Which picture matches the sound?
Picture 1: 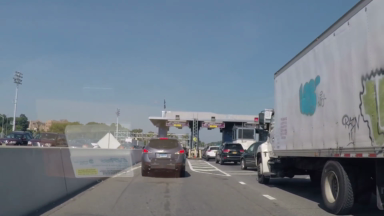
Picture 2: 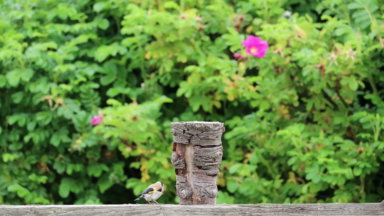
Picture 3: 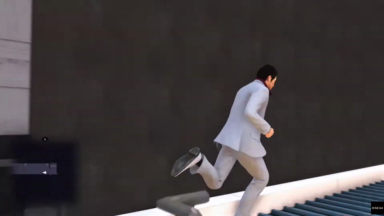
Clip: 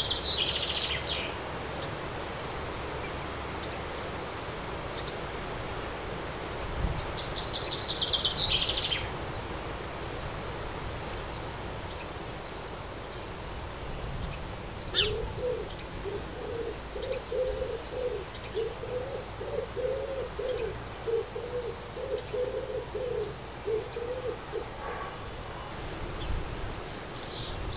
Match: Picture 2